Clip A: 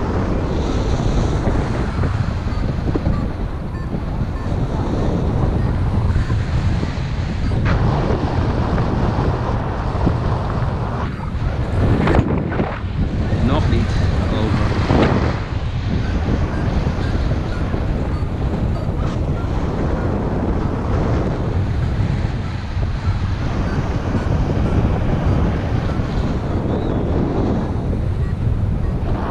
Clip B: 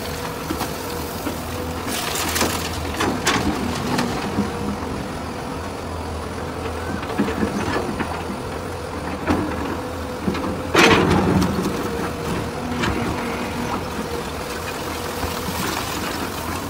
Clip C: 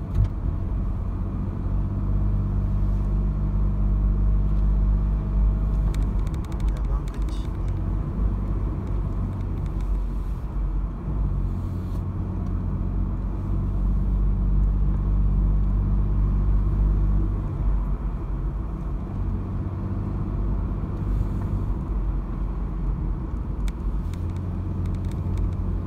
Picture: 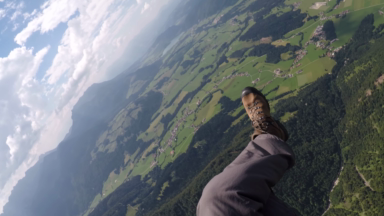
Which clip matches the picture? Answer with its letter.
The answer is A